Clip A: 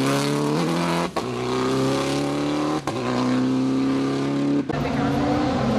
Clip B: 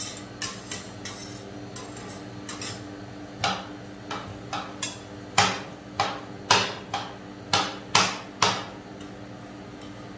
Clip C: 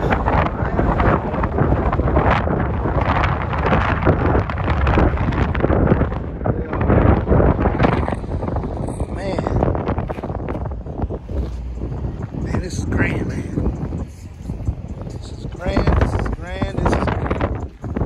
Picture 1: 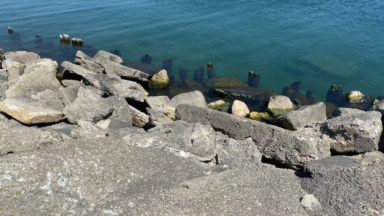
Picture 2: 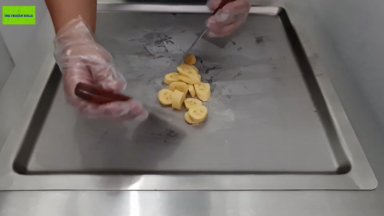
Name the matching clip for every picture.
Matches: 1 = C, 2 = B